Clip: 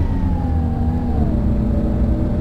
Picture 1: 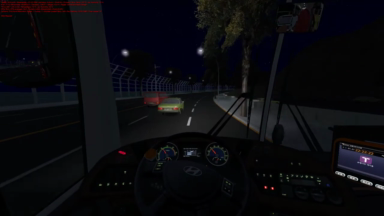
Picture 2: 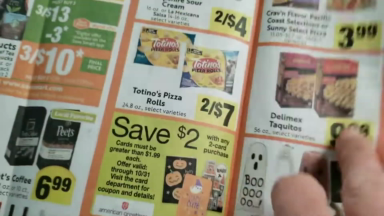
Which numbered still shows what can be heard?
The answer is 1